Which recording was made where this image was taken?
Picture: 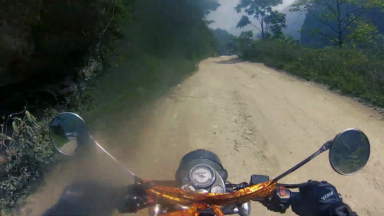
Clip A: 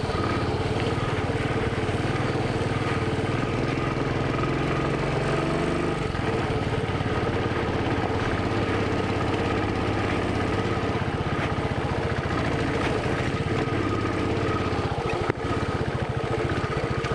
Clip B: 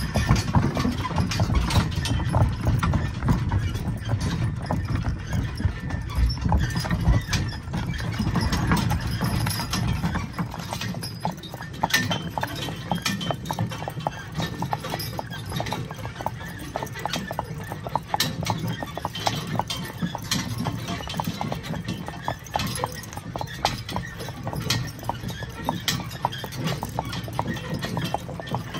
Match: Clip A